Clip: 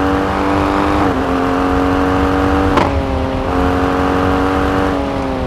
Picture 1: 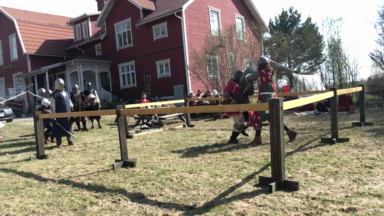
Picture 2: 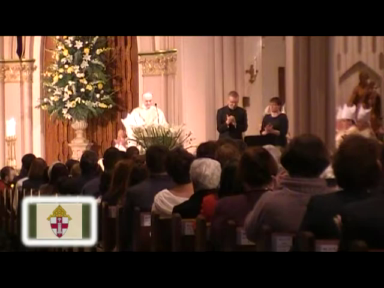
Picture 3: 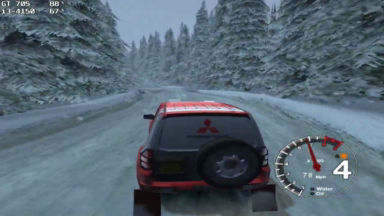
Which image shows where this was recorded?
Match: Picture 3